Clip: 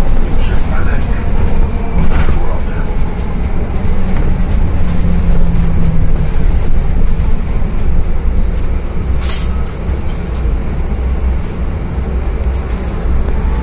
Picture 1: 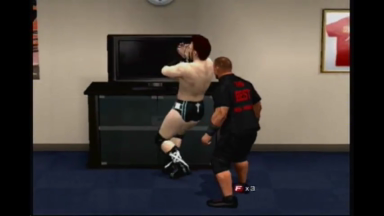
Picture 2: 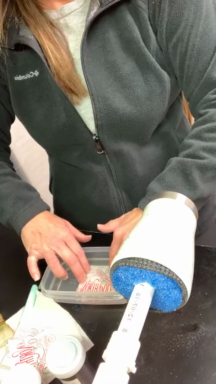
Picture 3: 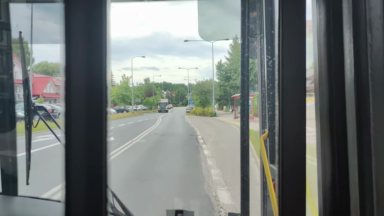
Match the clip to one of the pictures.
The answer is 3